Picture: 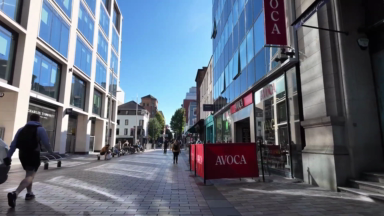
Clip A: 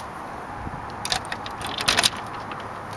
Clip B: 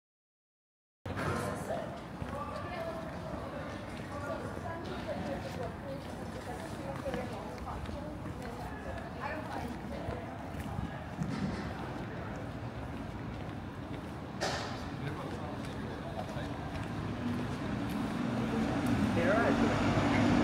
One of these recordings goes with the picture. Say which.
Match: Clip B